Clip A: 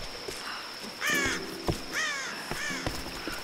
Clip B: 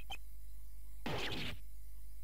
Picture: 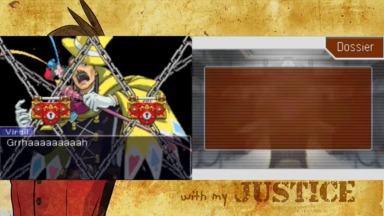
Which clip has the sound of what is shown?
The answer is B